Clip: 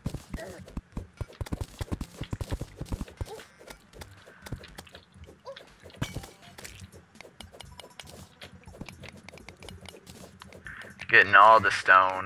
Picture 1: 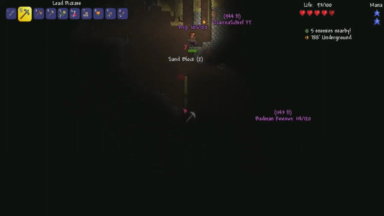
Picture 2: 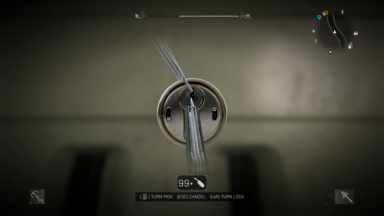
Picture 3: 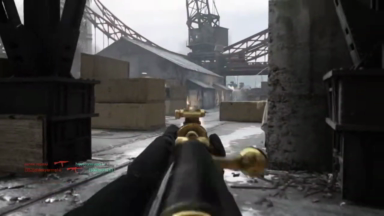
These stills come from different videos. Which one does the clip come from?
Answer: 1